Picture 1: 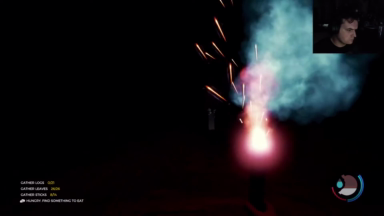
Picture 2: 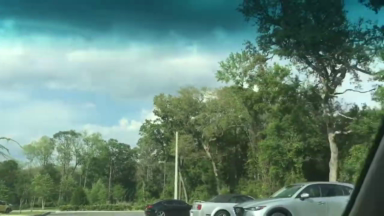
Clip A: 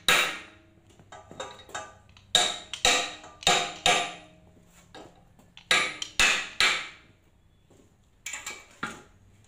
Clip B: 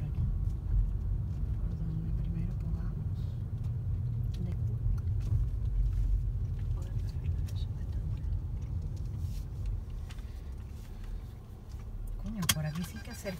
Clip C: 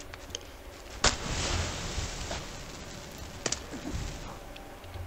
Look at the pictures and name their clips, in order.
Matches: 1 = C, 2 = B